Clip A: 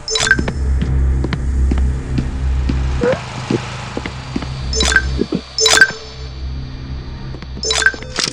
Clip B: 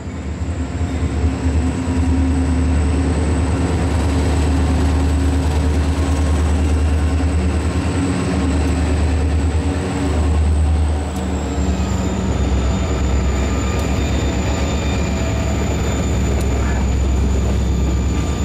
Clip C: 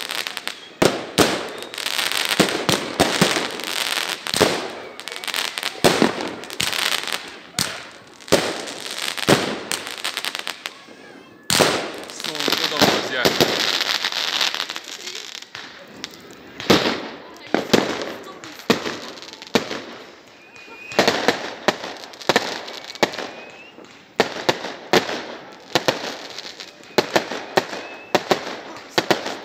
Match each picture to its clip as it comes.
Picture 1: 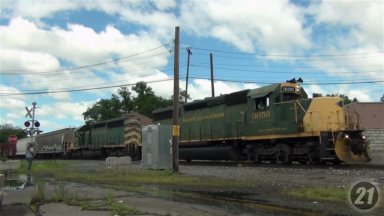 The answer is B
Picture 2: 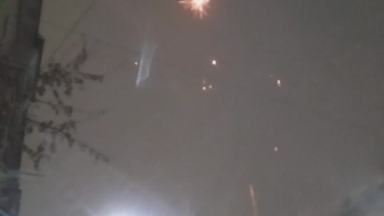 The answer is C